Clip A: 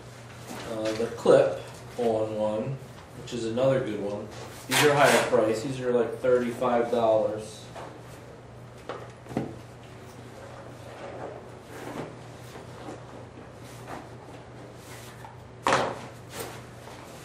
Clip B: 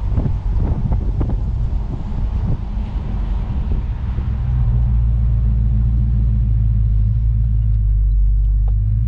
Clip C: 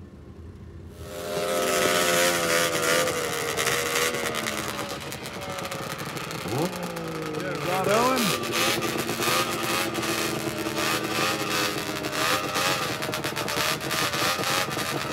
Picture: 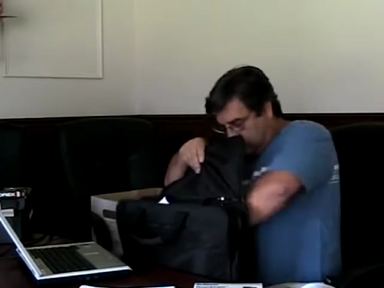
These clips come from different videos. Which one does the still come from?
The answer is A